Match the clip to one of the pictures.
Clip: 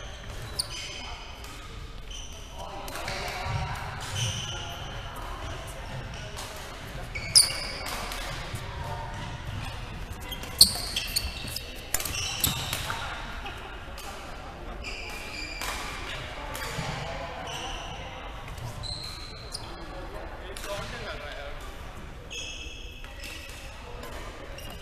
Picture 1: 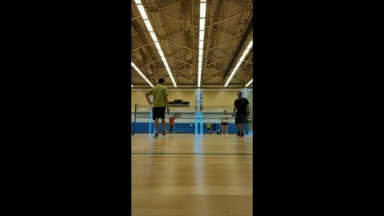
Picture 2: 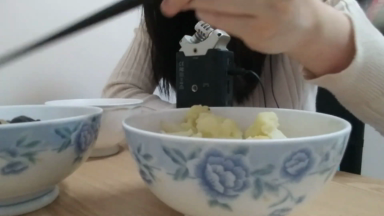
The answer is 1